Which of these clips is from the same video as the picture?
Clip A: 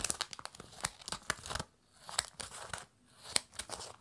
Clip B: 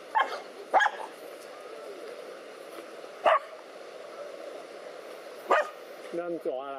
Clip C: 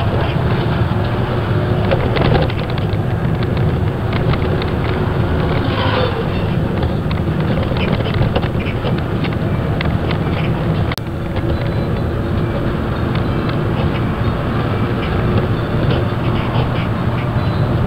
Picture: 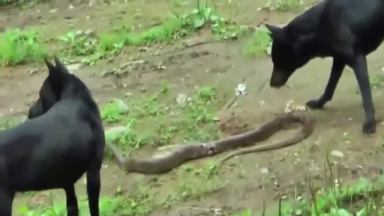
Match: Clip B